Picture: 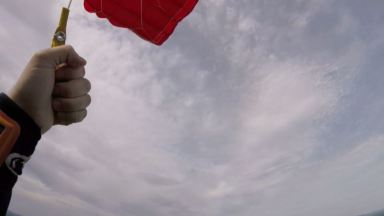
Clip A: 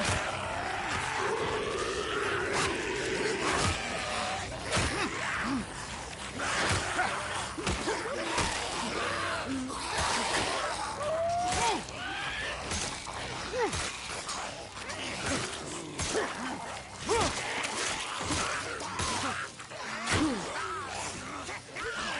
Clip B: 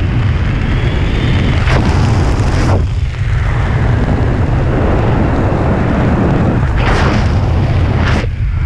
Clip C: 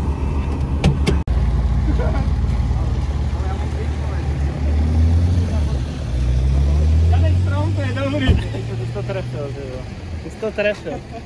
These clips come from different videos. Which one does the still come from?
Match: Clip B